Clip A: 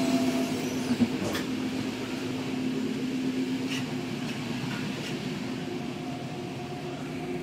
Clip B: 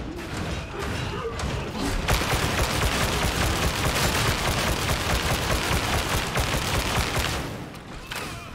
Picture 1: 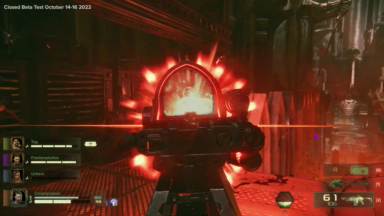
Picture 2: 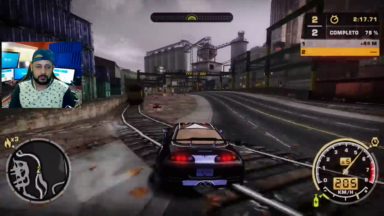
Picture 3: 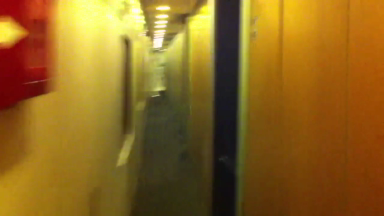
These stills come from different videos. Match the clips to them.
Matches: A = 3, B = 1